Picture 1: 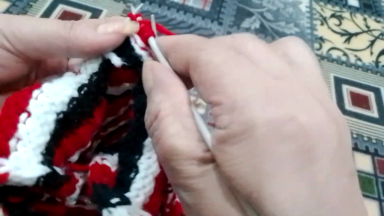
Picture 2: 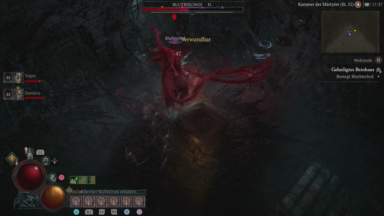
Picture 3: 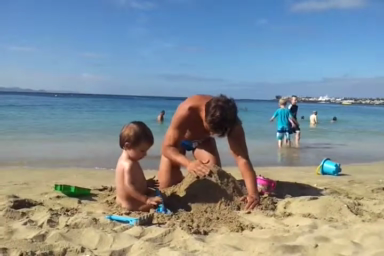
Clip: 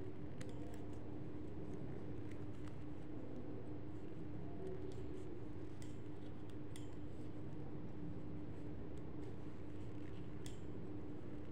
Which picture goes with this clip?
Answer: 1